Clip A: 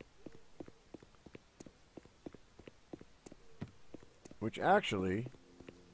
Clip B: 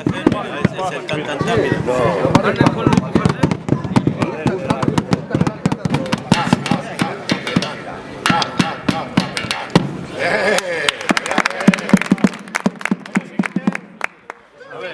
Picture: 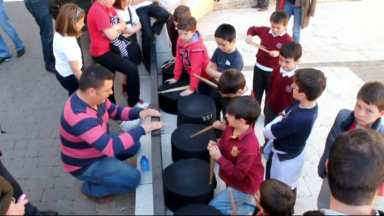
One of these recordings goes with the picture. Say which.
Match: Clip B